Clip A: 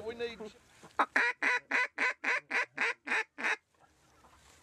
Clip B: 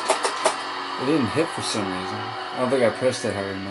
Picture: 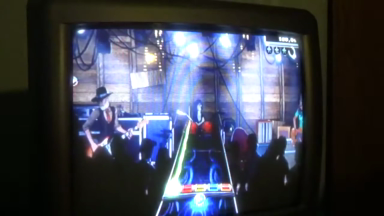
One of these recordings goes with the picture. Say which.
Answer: B